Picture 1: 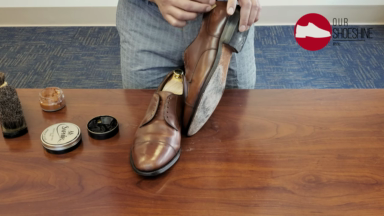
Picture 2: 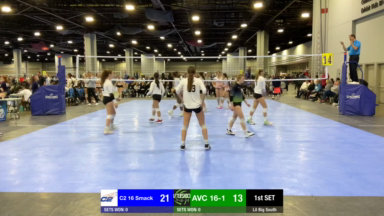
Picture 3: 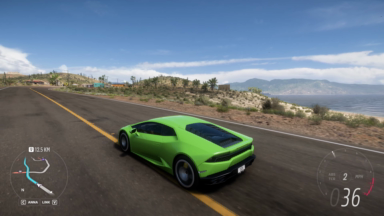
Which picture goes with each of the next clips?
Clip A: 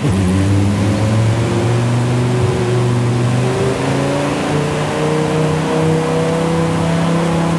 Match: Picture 3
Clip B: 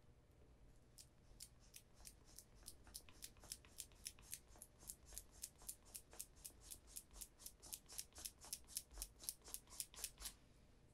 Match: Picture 1